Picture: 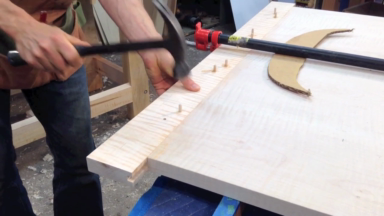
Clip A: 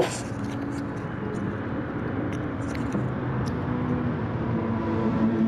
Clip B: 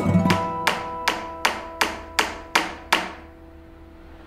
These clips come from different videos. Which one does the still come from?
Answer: B